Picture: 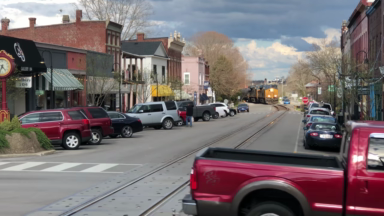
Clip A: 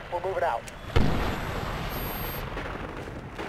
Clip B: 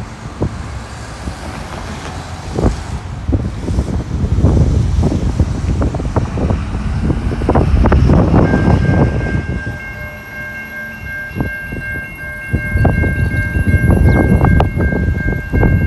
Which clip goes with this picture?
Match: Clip B